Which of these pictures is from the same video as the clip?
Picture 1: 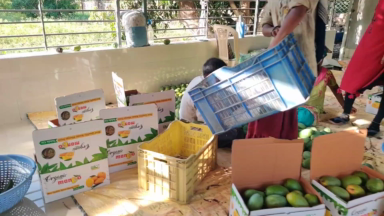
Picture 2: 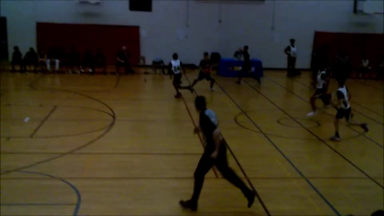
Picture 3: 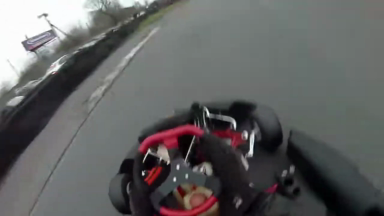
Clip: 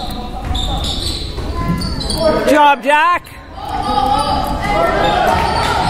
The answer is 2